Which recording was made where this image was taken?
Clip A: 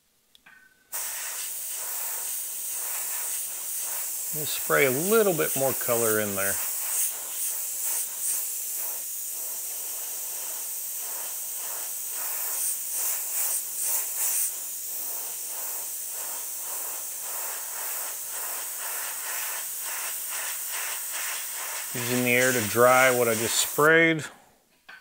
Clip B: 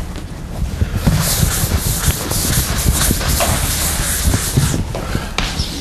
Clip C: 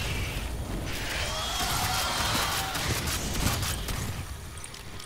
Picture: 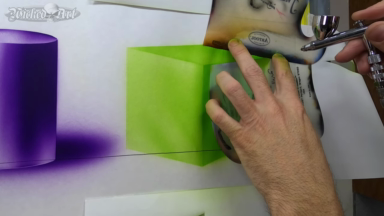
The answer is A